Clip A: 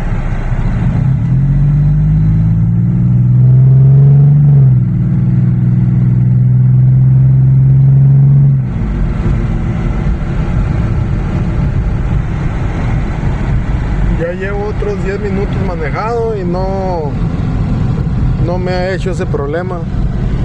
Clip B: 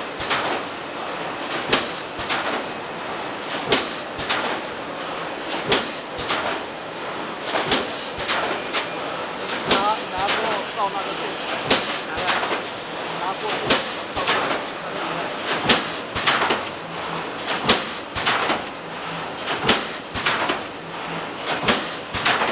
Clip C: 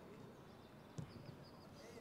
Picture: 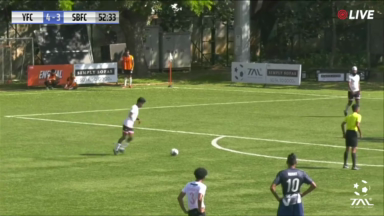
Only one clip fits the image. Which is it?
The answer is C